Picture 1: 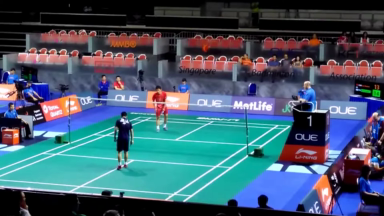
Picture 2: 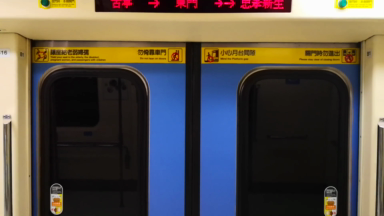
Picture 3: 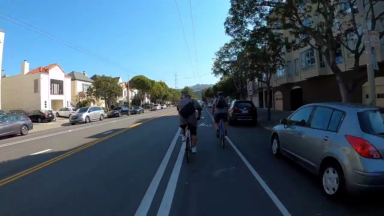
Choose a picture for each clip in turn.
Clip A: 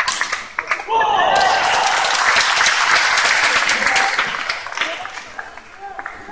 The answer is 1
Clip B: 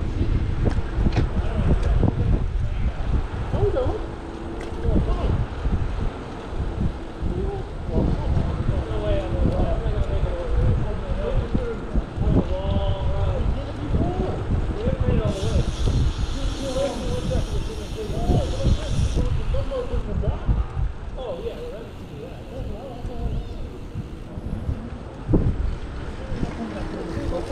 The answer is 3